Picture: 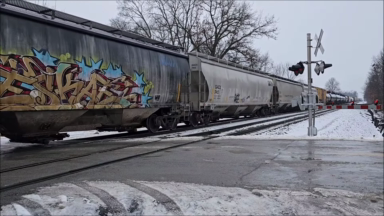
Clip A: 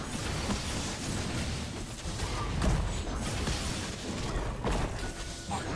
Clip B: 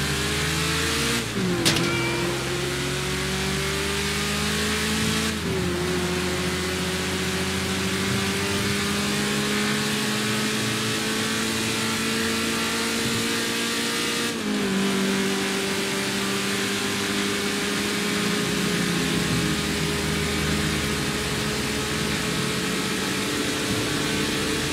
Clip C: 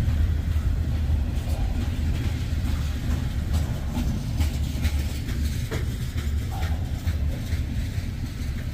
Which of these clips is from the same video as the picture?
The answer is C